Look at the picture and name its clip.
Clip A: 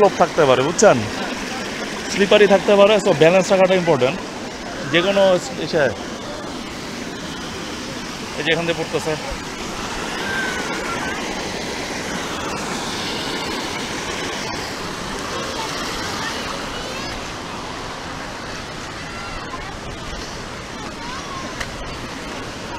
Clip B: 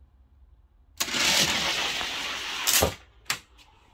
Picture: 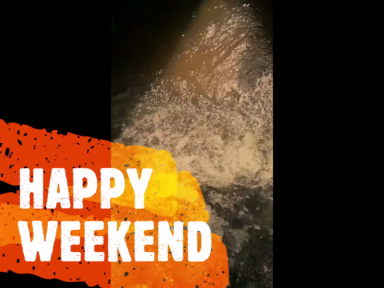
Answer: A